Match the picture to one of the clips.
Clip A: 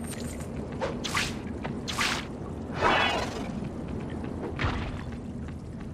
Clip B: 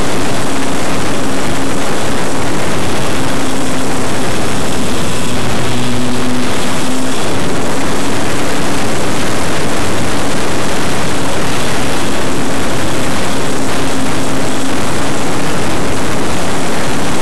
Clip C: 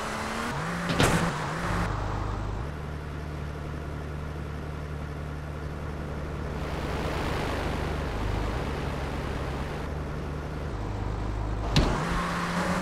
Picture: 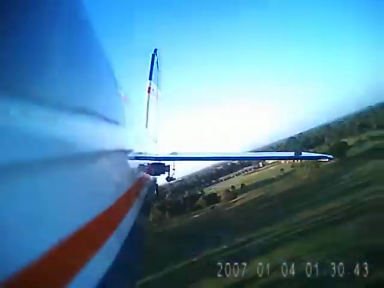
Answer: B